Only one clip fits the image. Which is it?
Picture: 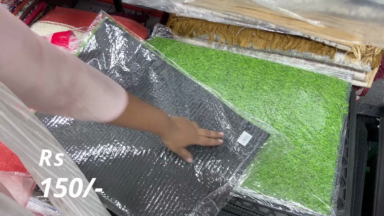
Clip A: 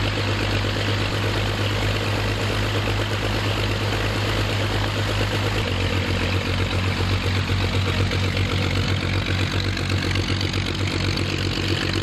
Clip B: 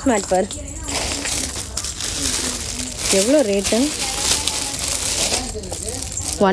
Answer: B